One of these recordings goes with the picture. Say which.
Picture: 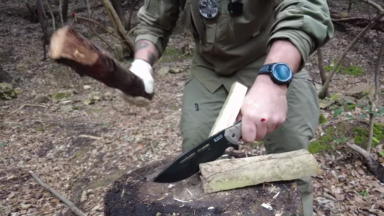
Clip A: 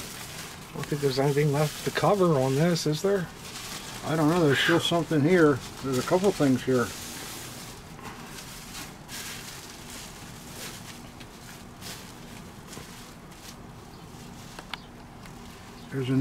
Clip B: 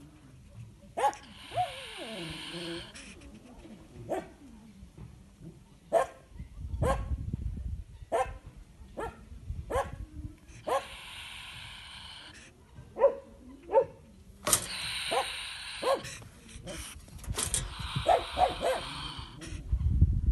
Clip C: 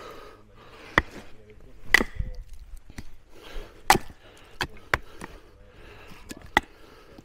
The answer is C